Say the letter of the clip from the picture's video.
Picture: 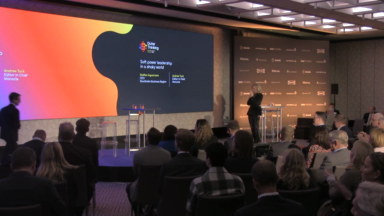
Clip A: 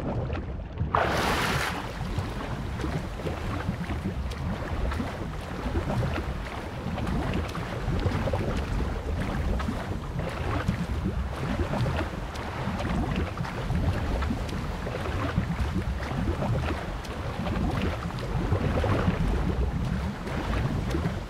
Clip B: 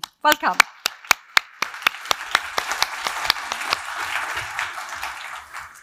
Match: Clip B